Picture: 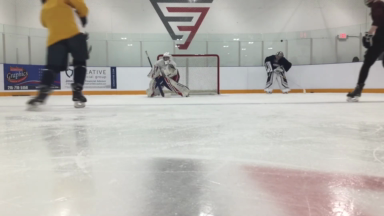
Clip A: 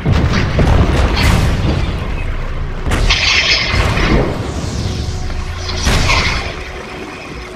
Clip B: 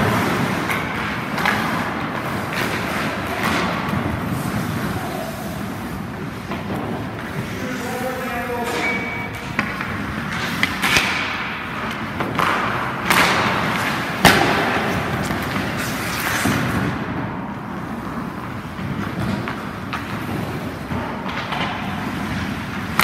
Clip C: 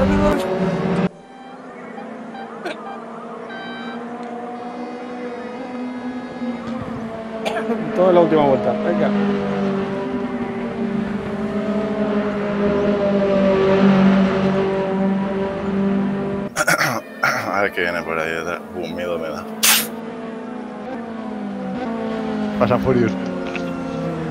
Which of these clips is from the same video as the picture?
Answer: B